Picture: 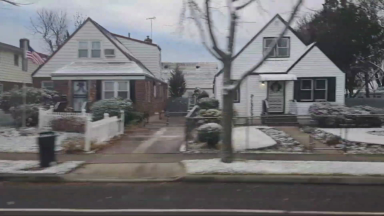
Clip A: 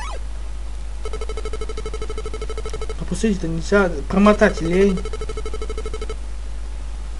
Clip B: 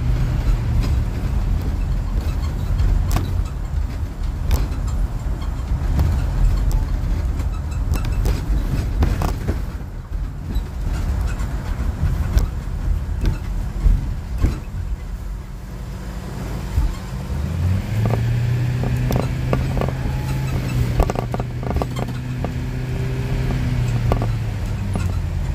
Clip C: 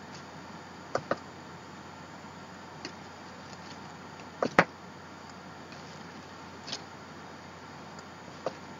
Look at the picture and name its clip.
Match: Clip B